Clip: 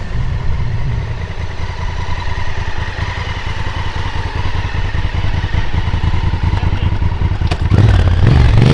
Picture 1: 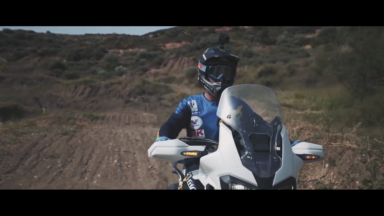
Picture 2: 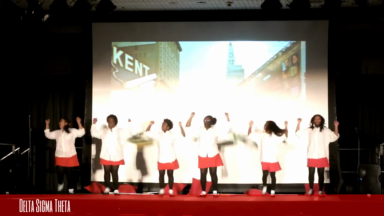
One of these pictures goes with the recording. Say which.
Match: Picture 1